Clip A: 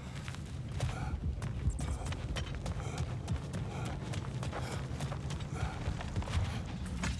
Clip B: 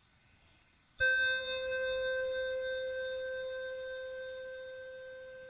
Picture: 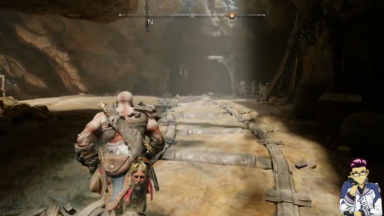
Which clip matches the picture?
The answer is A